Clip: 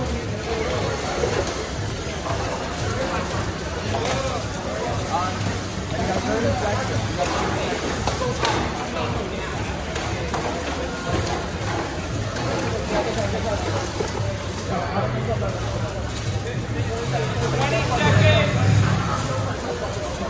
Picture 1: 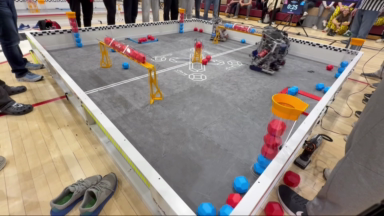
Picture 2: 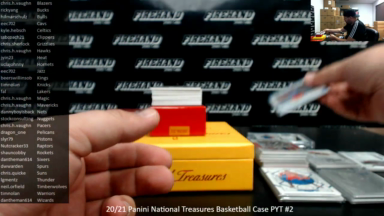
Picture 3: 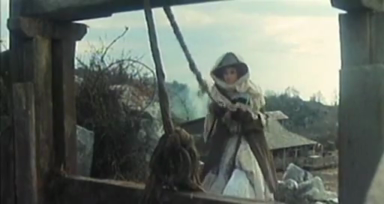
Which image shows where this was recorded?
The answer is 1